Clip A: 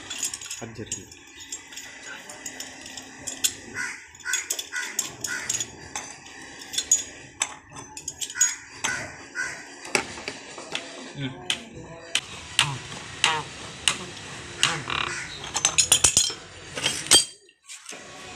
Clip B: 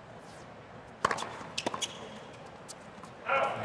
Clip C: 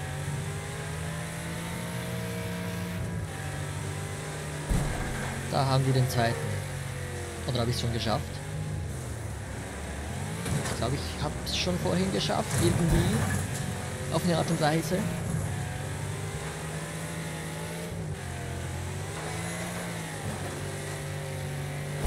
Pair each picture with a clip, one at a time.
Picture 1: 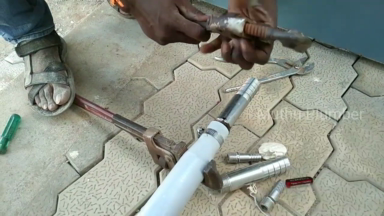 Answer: A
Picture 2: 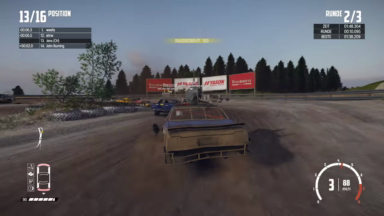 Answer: C